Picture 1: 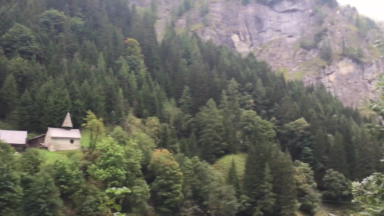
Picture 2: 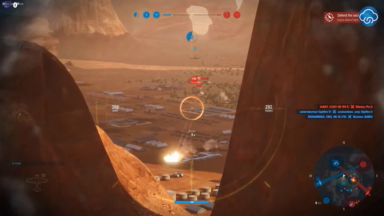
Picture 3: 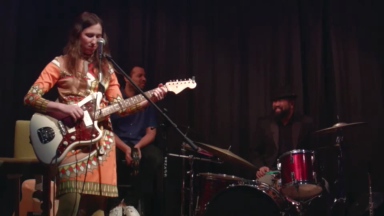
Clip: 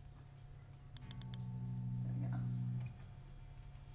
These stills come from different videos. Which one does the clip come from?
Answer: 3